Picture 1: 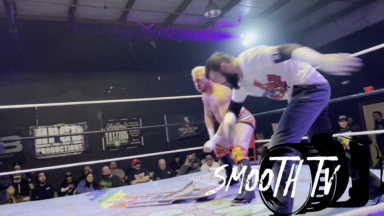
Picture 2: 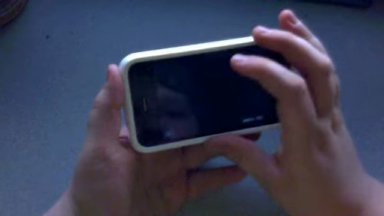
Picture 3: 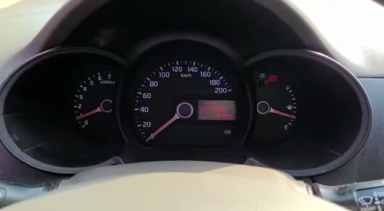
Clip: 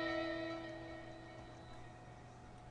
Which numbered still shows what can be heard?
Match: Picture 2